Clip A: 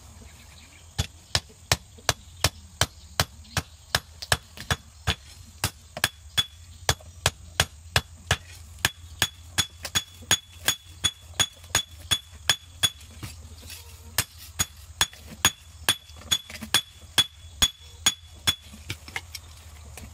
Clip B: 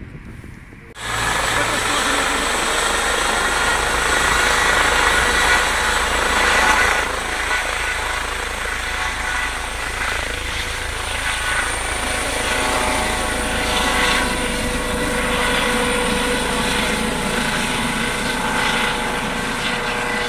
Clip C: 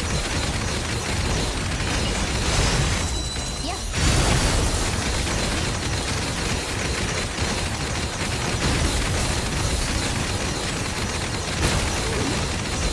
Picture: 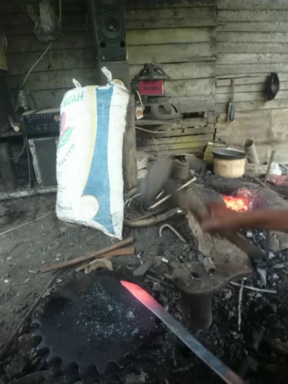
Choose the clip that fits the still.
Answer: A